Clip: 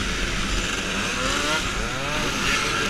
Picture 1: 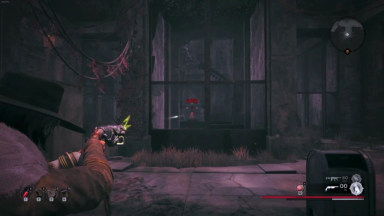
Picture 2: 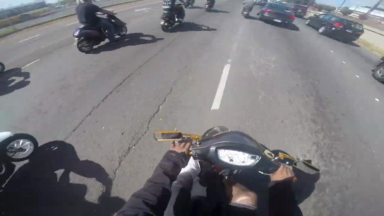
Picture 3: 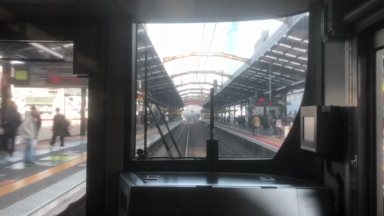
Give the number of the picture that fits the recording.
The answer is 2